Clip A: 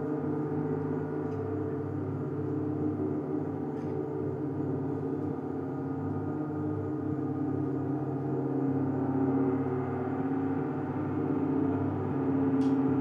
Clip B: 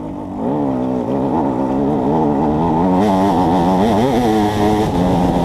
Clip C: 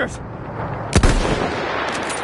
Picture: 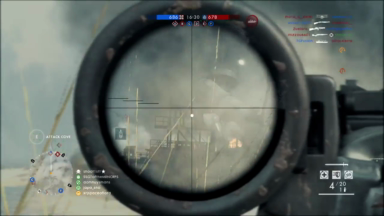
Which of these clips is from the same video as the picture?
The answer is C